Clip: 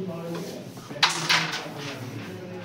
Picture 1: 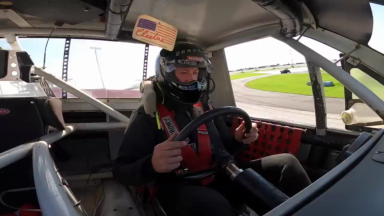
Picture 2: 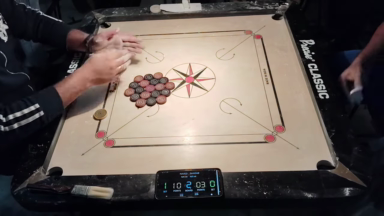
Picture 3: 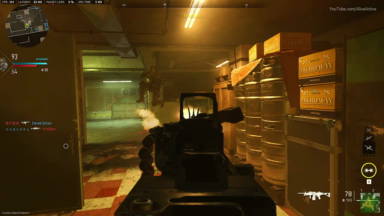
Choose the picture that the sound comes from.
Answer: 2